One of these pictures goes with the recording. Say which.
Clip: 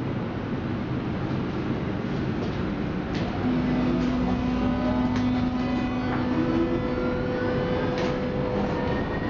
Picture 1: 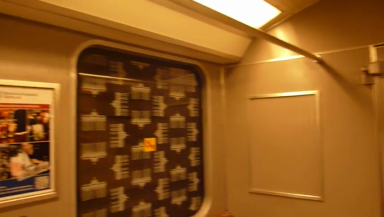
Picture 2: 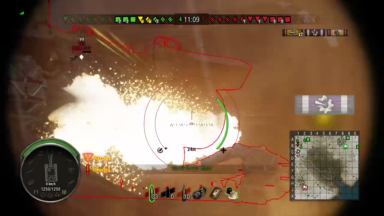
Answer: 1